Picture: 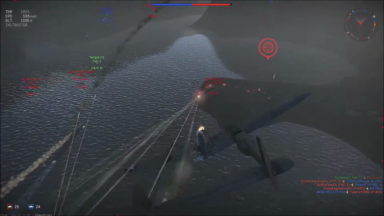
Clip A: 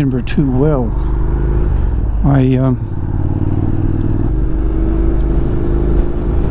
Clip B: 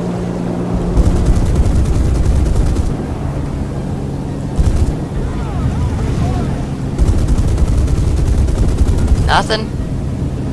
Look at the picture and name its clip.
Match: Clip B